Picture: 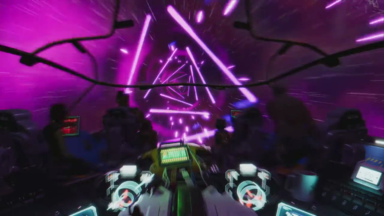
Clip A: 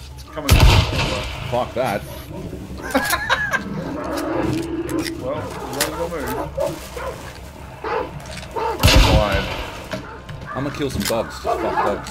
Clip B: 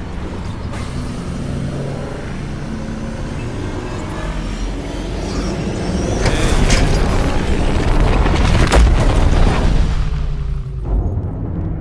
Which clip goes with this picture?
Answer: B